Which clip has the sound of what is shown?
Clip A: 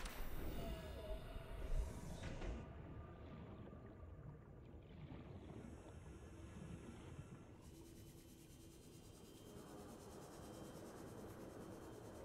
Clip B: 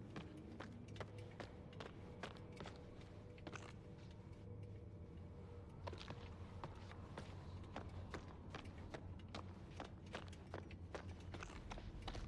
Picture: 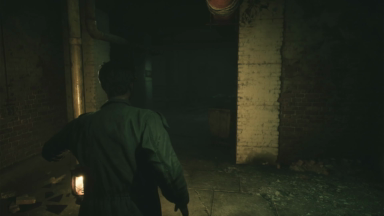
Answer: B